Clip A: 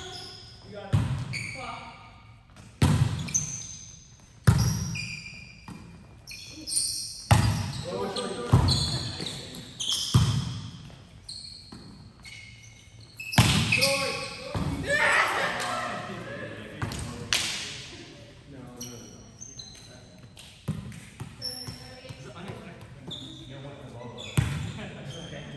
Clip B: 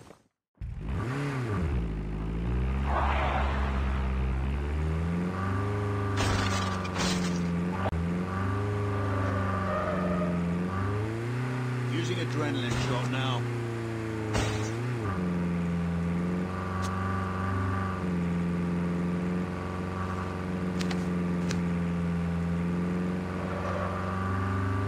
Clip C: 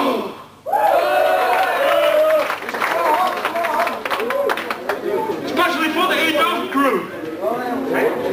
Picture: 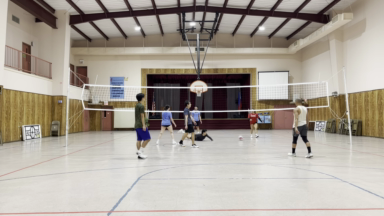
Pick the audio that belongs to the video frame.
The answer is A